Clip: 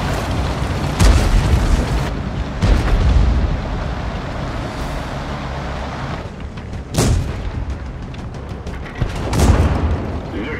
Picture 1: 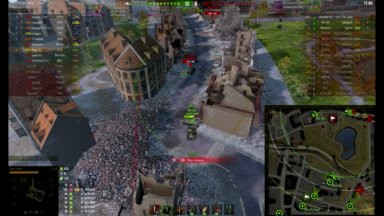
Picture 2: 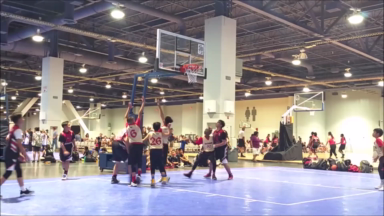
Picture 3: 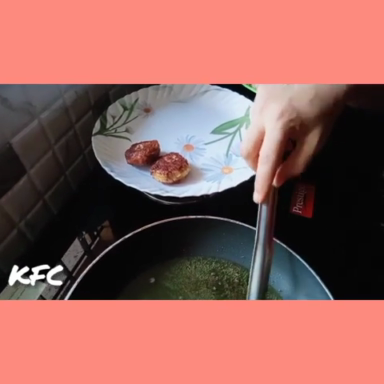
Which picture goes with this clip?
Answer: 1